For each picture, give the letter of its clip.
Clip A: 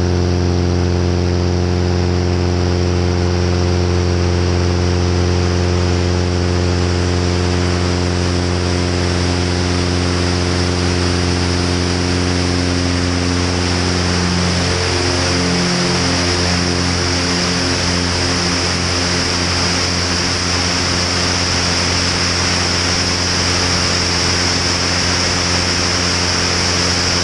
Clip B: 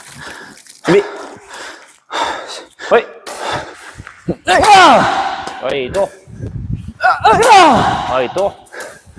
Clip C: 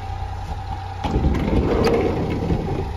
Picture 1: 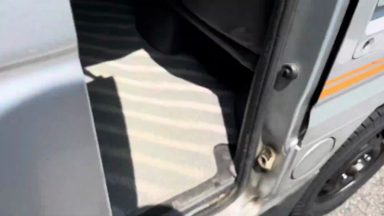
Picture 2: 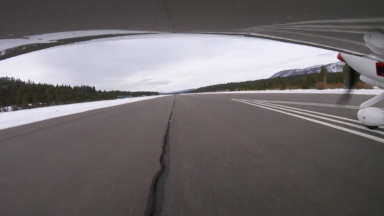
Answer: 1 C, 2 A